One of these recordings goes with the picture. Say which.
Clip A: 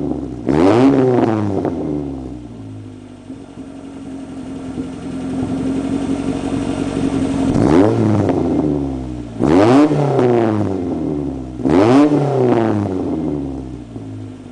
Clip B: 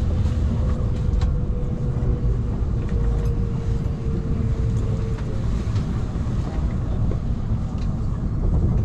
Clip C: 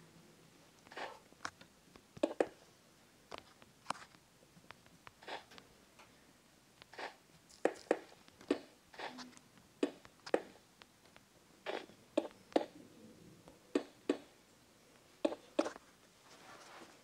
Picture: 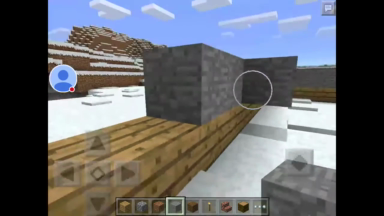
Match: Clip C